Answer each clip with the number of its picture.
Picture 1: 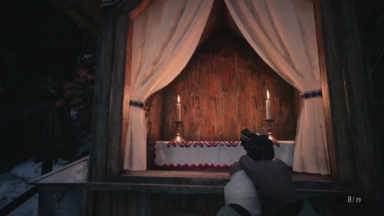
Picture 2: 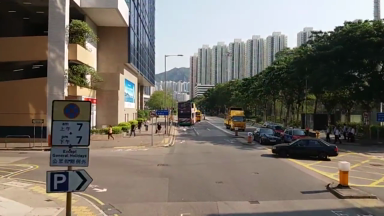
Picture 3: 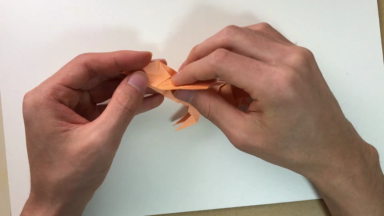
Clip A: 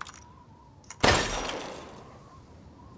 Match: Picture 1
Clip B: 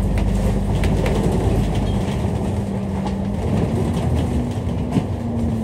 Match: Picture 2